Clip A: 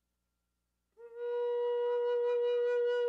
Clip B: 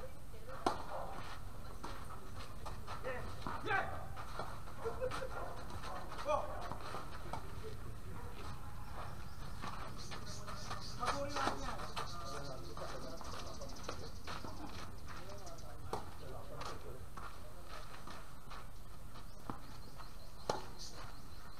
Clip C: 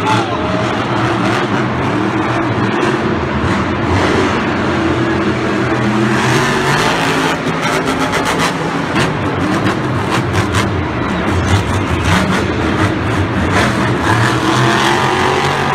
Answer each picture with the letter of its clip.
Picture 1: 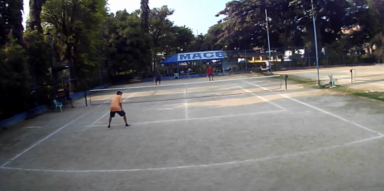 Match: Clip B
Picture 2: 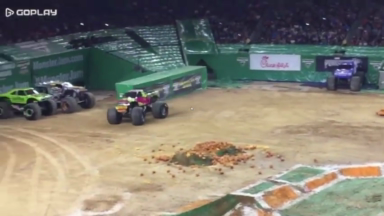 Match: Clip C